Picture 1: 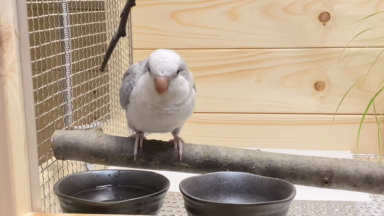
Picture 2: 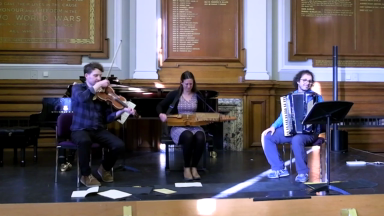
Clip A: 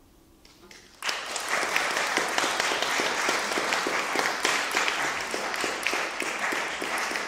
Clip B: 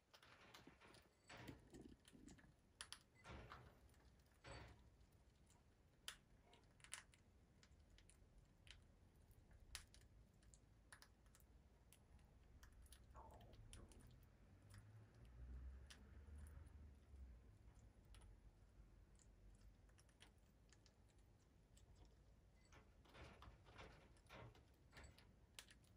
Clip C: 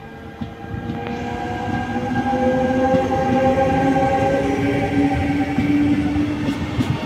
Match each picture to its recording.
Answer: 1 B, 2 A